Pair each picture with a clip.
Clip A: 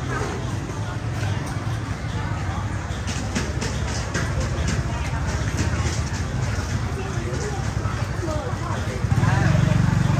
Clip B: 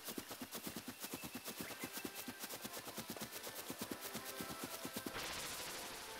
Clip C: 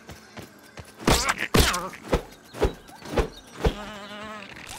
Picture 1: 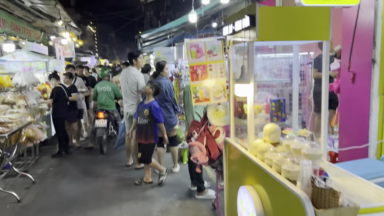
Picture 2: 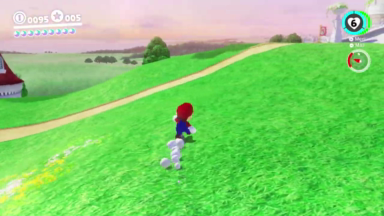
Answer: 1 A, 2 B